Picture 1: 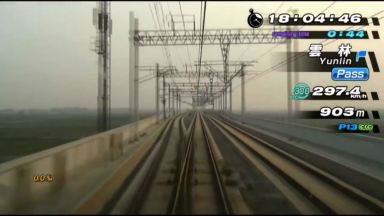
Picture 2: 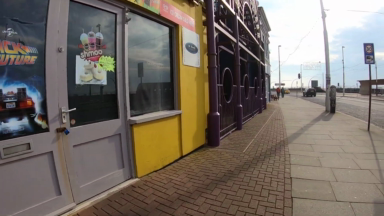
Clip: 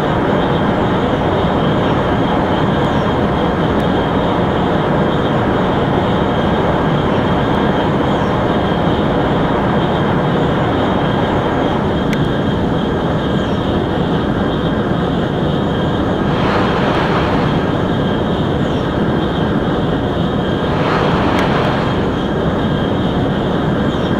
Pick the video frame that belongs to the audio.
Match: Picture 1